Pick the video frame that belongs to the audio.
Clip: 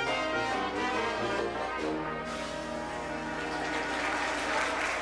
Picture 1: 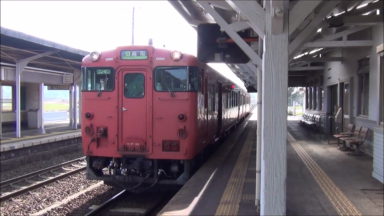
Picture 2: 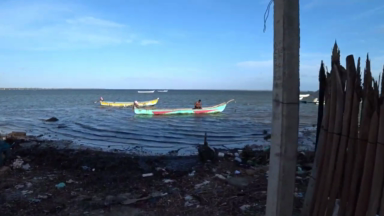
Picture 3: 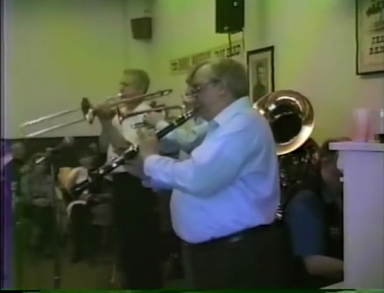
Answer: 3